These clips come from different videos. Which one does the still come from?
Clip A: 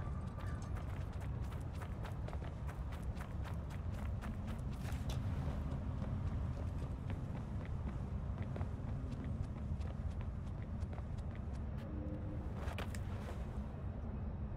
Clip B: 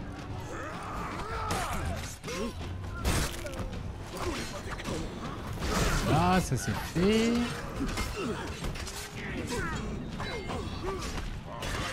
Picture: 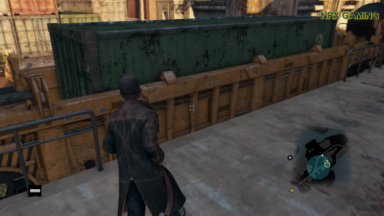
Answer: A